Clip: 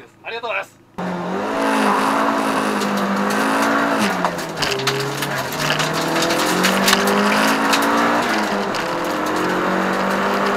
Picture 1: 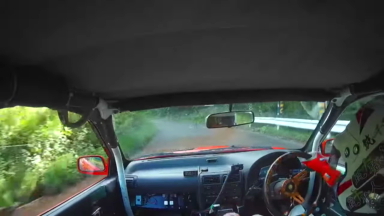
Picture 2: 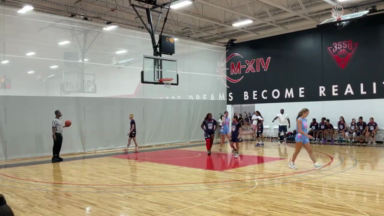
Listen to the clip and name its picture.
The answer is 1